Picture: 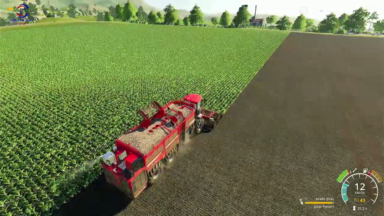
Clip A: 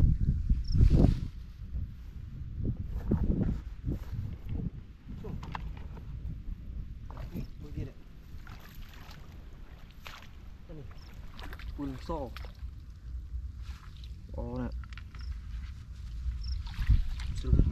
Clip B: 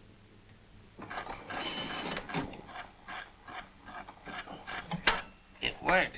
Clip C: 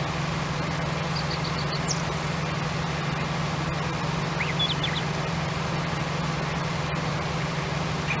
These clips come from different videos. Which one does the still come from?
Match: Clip C